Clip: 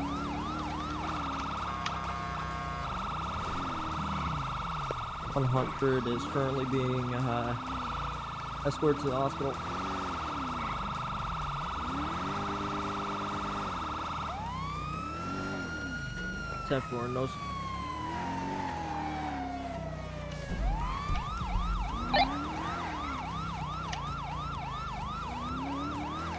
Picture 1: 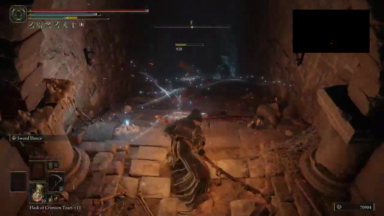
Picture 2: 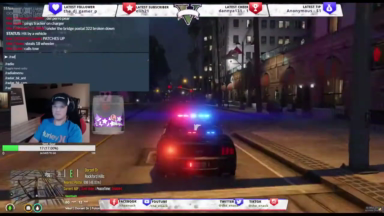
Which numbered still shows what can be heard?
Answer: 2